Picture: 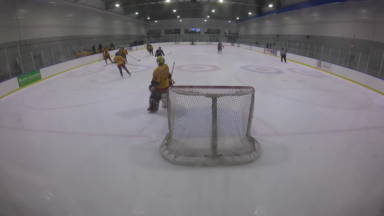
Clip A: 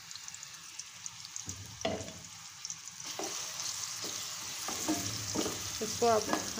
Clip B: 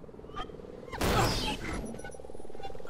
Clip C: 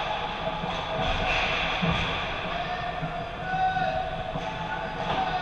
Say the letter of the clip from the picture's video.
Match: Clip C